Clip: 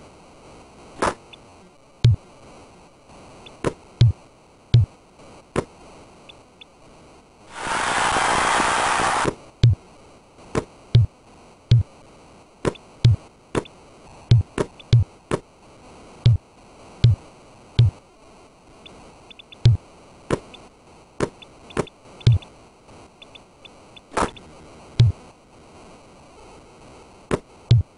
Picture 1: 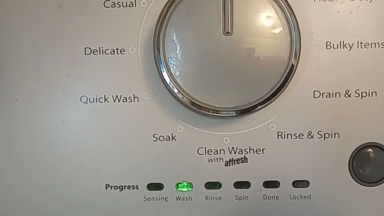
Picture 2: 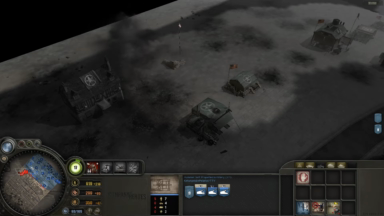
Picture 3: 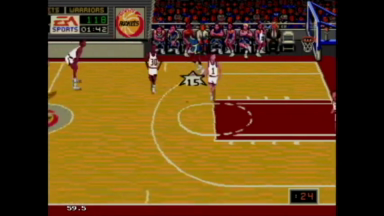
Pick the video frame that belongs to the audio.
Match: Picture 3